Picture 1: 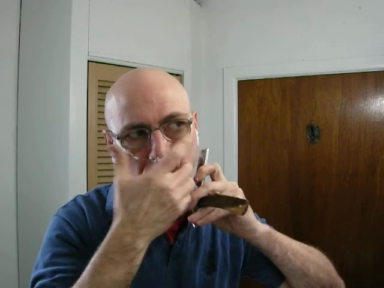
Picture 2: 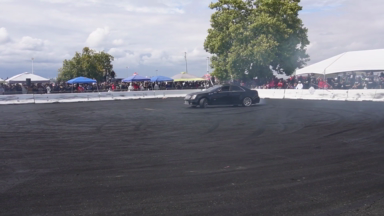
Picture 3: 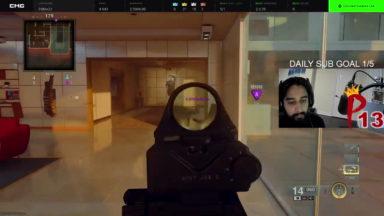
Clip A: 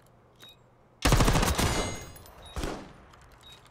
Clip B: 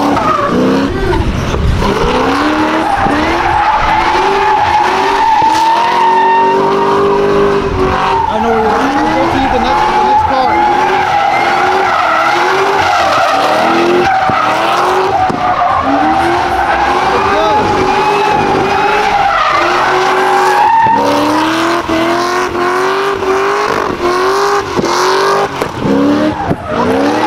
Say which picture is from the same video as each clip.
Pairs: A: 3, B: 2